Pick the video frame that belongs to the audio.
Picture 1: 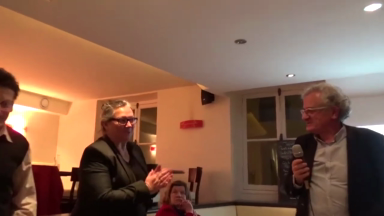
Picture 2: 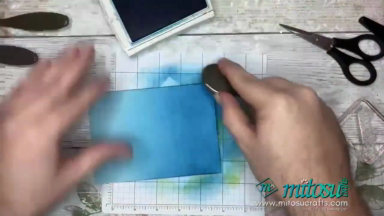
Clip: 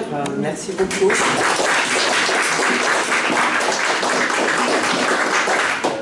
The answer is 1